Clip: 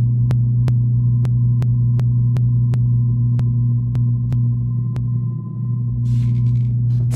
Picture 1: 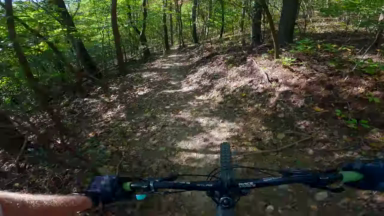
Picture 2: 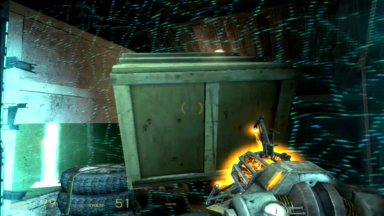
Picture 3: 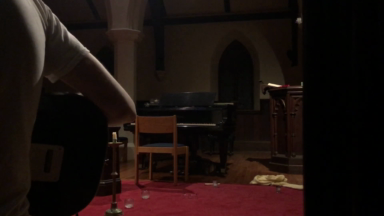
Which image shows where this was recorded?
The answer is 2